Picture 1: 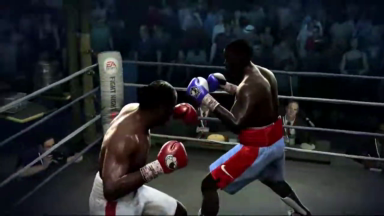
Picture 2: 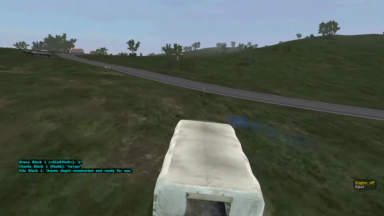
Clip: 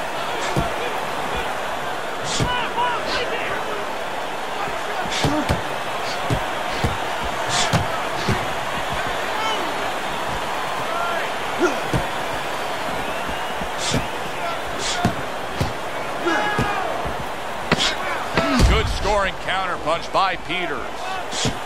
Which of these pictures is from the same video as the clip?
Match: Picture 1